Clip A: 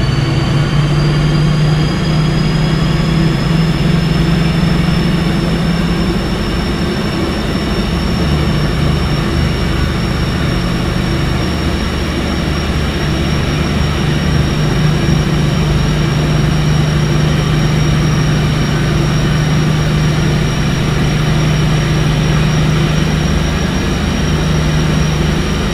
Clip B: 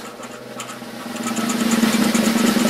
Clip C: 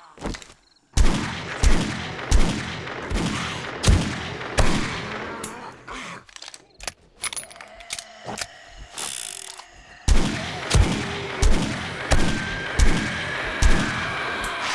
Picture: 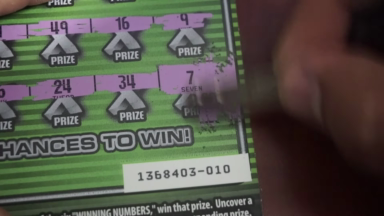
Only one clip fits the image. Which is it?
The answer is B